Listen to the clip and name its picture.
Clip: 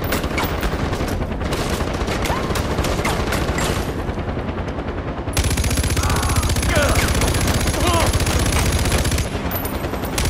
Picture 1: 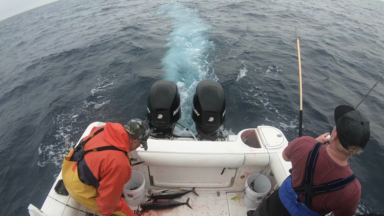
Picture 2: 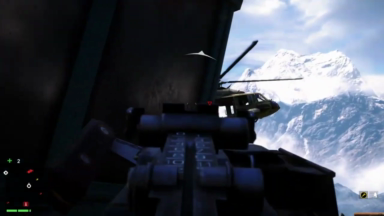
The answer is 2